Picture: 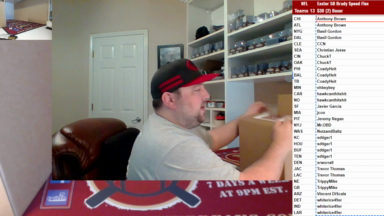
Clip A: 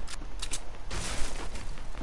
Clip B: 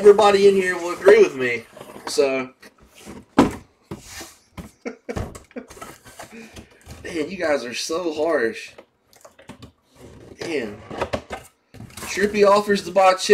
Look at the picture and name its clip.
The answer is B